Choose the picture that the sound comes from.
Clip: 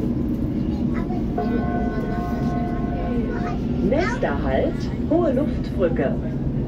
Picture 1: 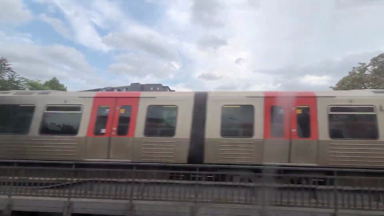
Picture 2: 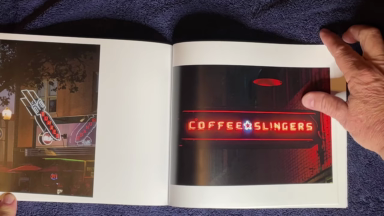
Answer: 1